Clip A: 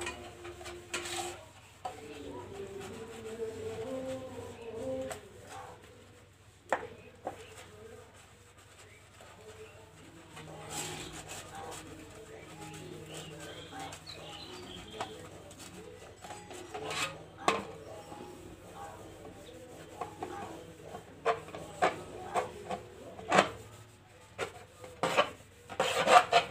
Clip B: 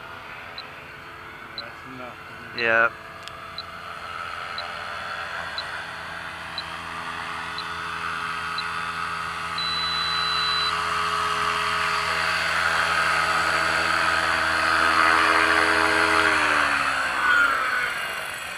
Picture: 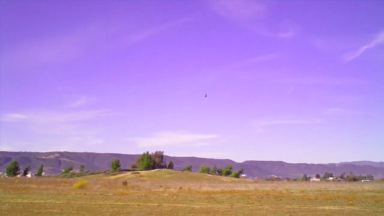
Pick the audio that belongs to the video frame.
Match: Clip B